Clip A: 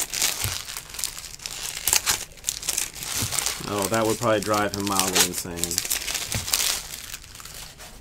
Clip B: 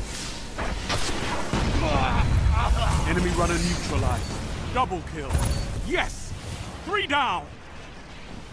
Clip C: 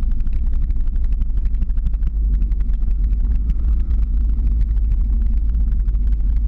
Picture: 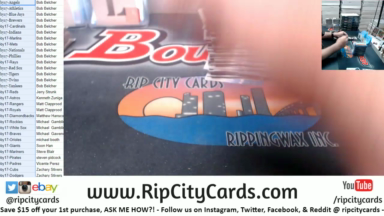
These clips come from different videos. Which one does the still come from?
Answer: A